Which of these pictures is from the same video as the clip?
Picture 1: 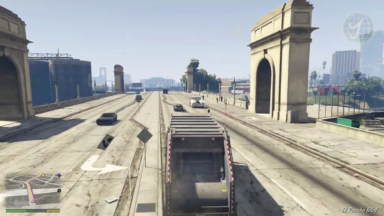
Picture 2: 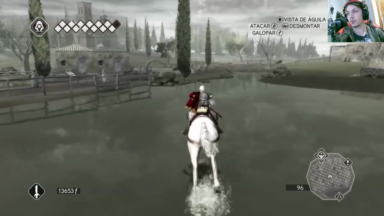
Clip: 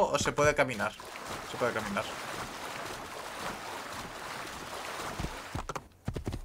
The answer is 2